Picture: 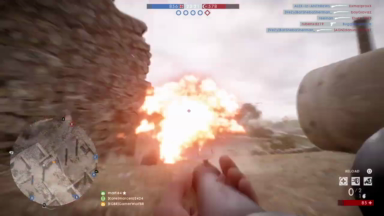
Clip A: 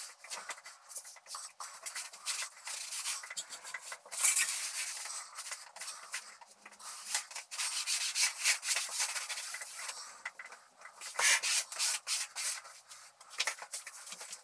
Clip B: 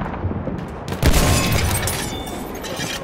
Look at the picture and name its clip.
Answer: B